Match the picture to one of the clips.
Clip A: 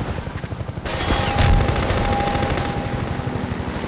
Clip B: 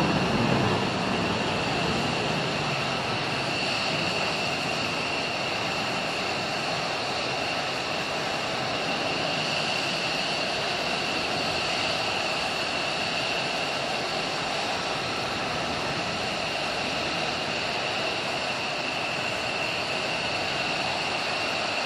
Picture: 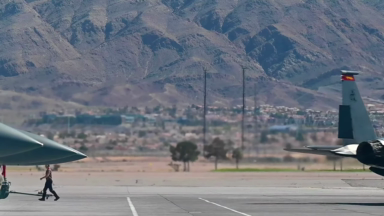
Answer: B